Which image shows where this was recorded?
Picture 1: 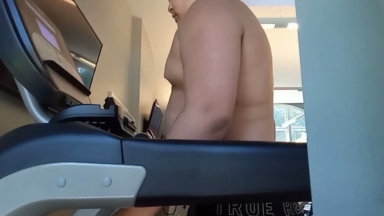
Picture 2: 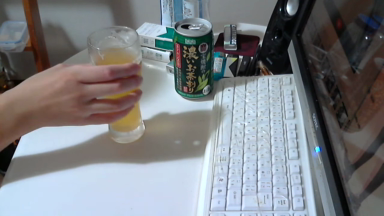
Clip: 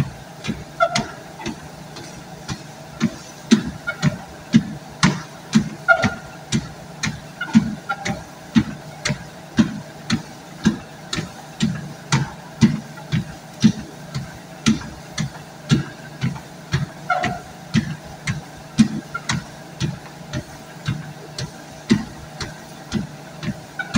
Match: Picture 1